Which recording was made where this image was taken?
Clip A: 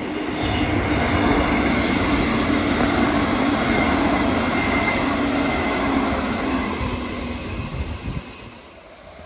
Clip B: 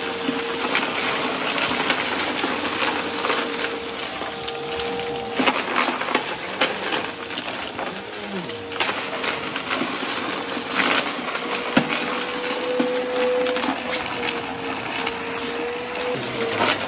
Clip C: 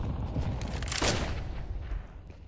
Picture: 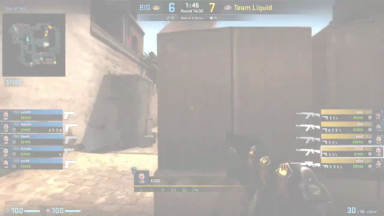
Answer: C